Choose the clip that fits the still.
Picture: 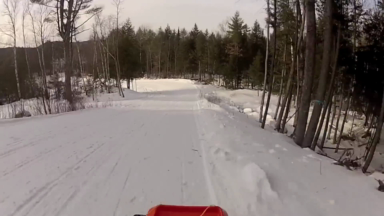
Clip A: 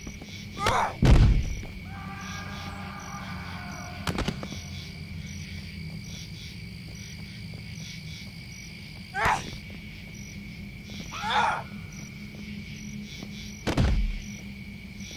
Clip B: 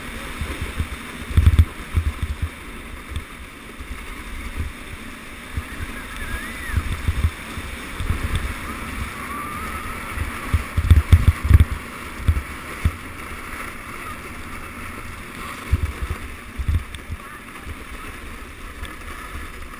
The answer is B